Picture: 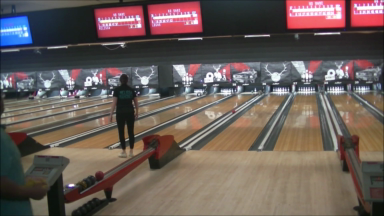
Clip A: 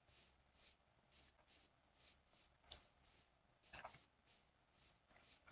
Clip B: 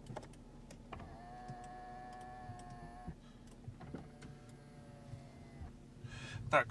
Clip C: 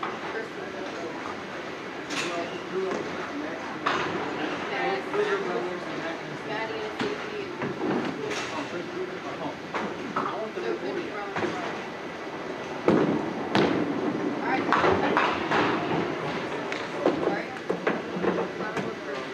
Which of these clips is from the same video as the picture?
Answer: C